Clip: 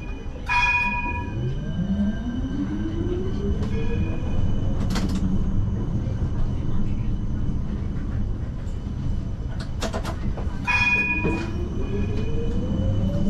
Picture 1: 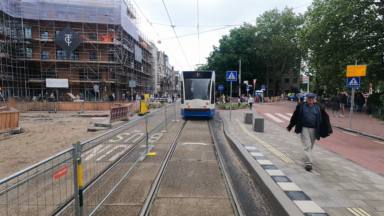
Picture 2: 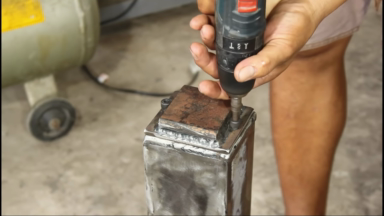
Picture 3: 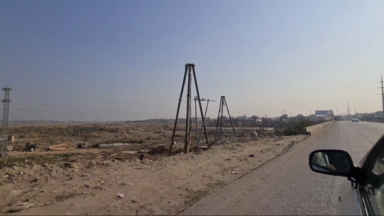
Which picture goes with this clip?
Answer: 1